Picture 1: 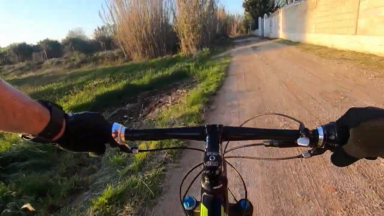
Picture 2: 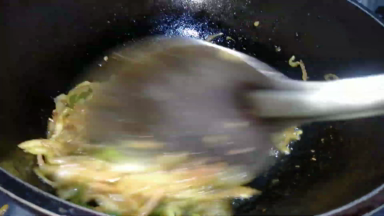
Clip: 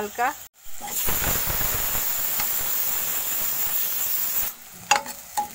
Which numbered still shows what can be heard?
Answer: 2